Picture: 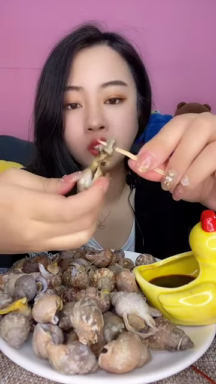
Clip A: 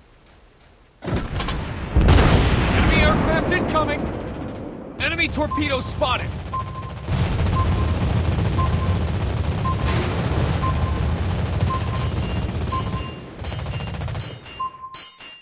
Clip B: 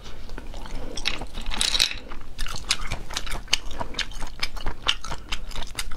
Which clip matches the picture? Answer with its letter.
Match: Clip B